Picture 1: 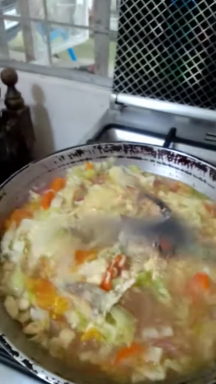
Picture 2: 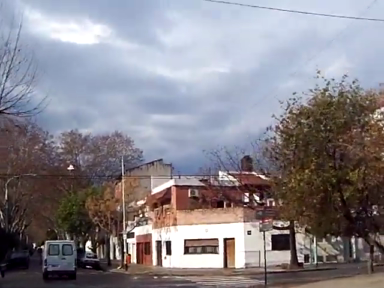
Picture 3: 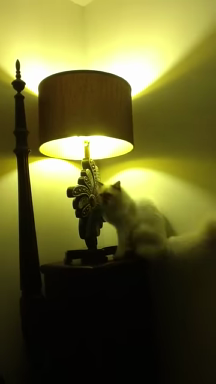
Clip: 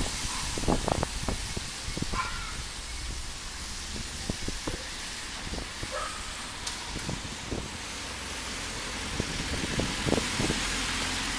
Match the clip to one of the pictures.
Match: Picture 2